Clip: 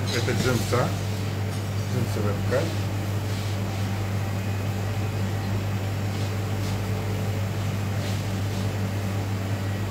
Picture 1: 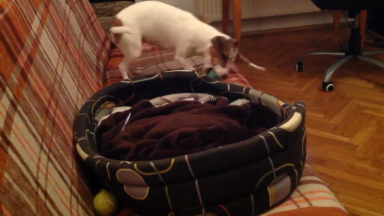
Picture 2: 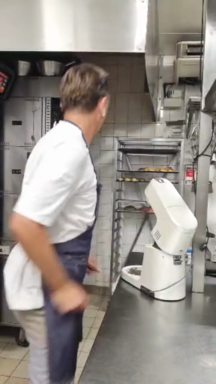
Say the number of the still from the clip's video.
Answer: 2